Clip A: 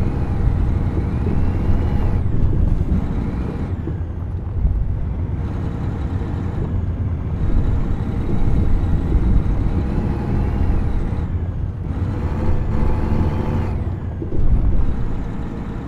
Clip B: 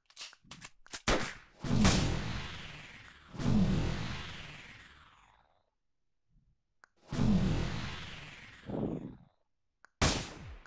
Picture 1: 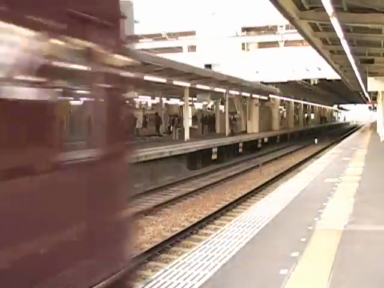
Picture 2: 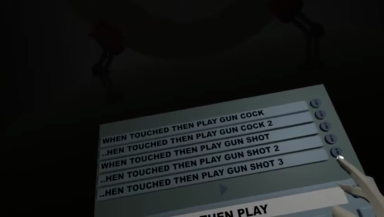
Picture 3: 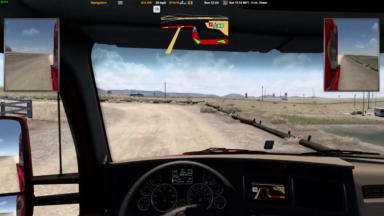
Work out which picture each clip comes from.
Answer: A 3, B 2